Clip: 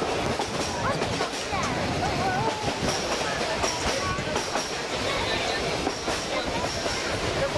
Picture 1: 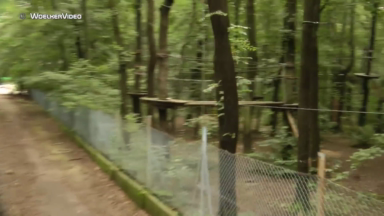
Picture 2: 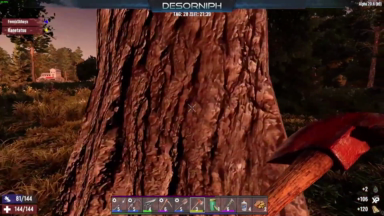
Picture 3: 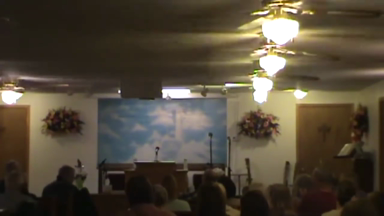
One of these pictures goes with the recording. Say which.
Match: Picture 1